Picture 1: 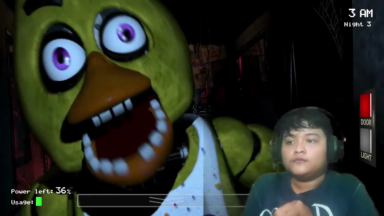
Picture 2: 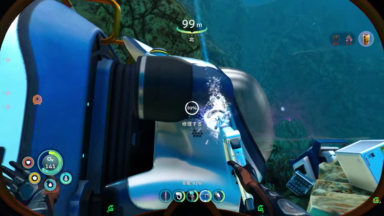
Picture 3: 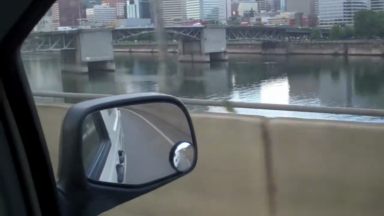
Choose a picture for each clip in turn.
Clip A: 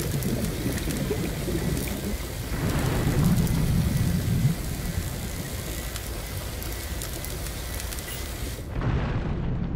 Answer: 2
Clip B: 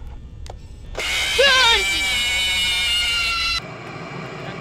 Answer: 1